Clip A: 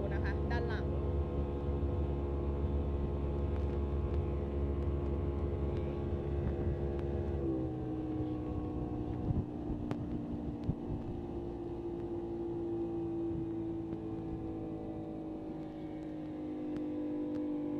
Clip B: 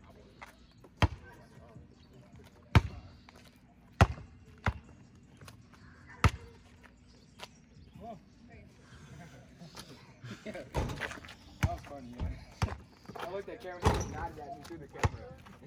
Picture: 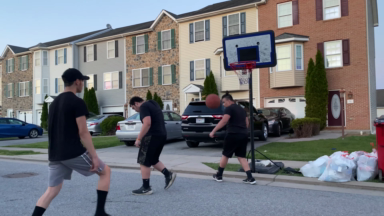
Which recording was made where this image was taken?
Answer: B